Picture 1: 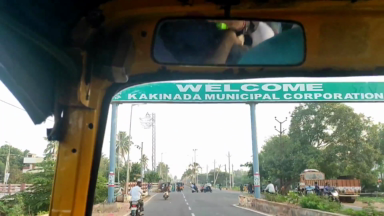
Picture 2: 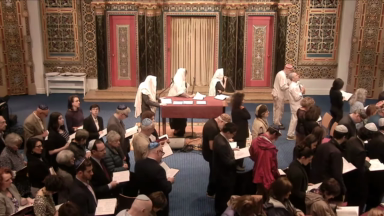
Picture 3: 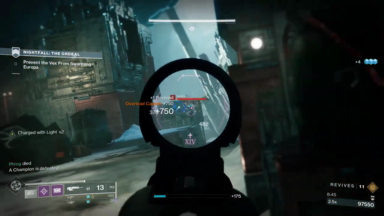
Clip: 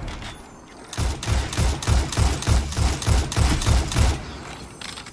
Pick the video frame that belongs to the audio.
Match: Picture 3